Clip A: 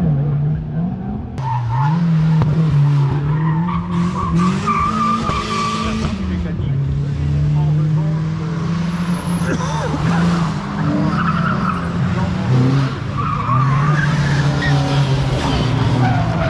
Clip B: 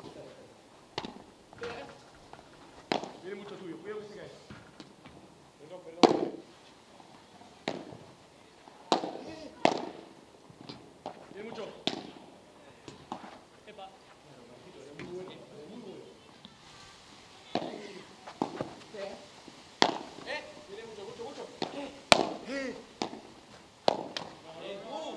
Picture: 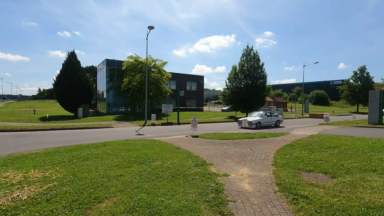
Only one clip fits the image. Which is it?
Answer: A